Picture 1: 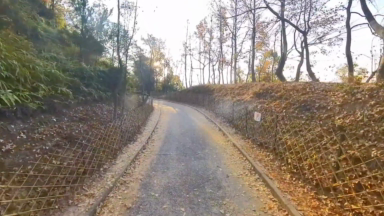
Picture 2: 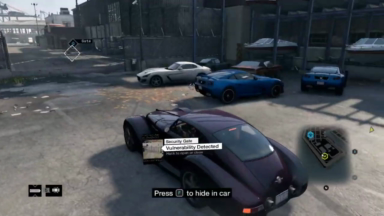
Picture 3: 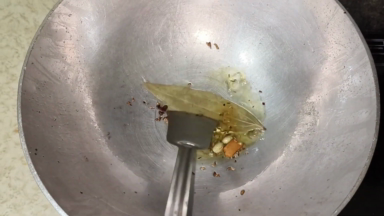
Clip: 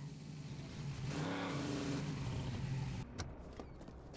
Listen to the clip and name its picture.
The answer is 2